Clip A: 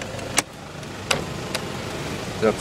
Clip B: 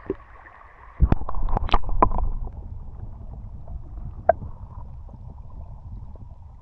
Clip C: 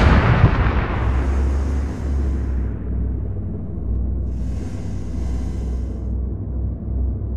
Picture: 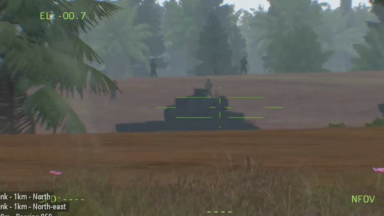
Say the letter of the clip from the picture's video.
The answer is C